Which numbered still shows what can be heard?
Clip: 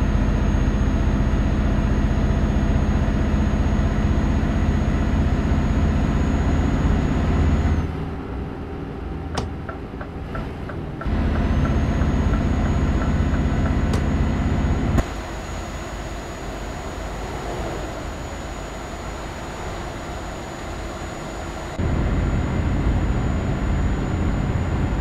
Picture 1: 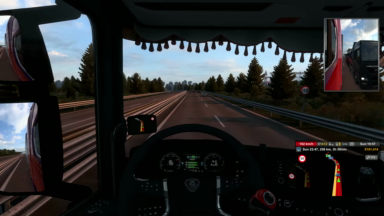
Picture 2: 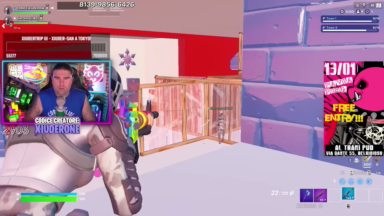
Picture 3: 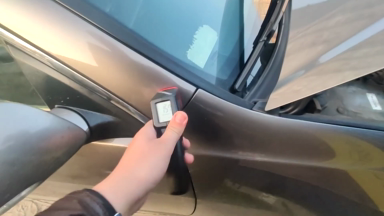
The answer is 1